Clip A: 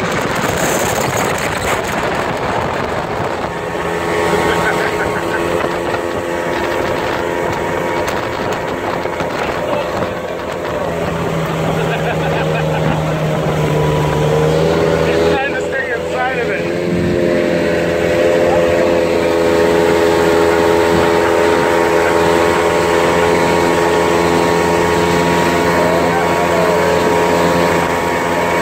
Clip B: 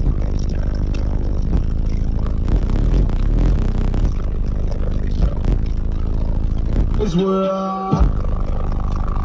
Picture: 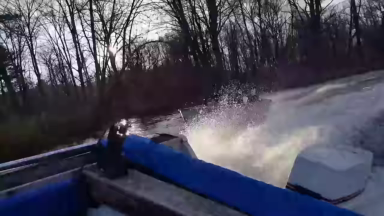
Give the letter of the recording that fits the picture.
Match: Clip A